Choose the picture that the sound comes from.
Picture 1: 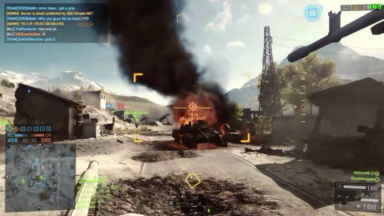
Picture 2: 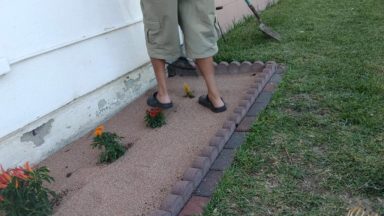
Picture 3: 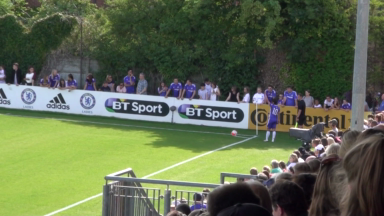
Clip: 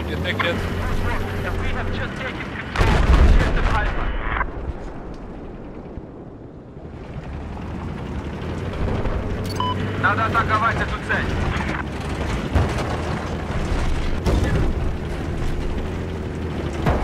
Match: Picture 1